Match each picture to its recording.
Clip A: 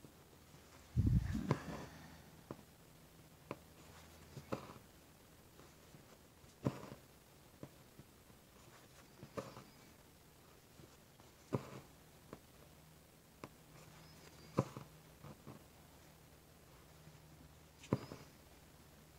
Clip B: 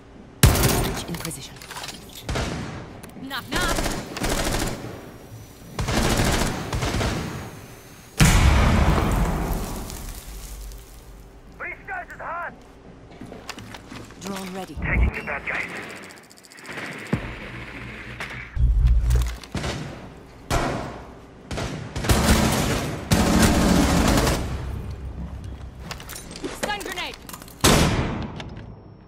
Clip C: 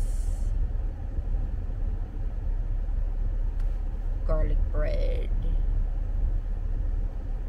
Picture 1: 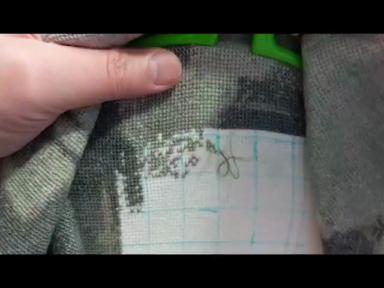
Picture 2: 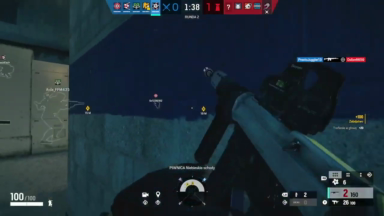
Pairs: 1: A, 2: B